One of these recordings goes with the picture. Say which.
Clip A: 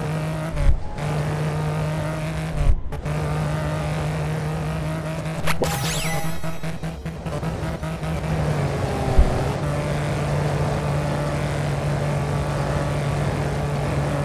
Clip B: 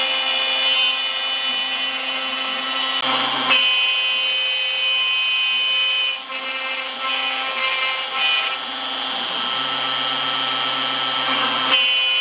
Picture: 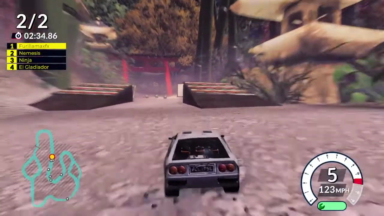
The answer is A